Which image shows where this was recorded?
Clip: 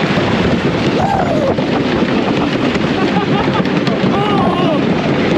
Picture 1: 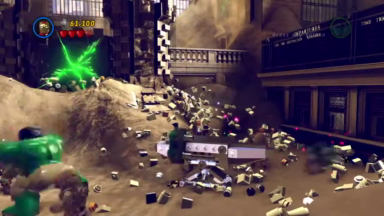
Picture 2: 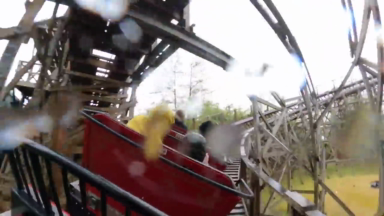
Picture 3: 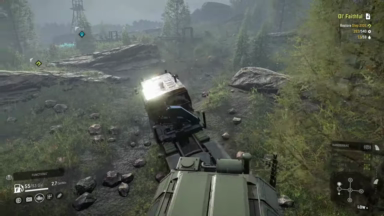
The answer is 2